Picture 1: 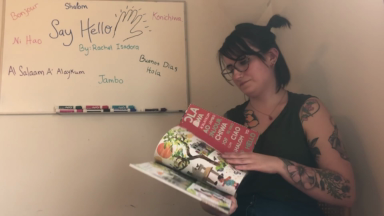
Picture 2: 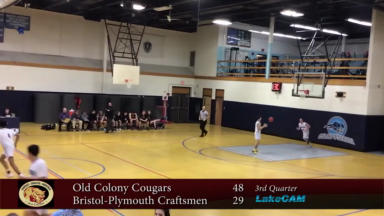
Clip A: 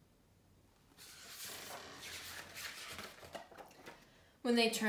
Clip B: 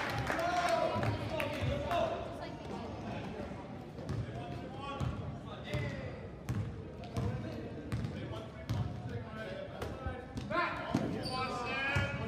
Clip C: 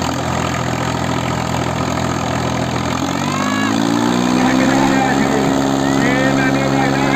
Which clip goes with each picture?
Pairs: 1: A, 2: B